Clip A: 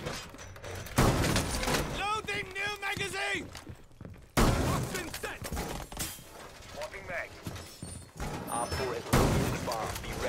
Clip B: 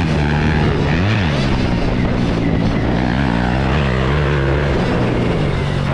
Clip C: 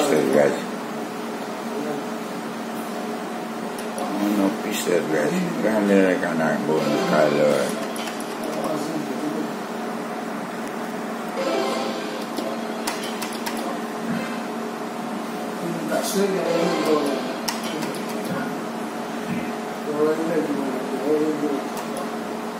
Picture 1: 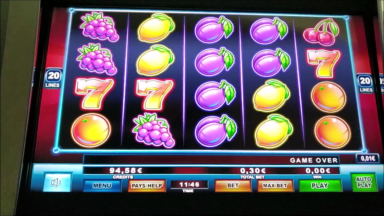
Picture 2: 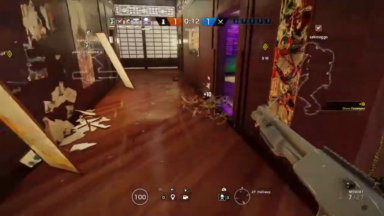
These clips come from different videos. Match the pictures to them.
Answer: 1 C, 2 A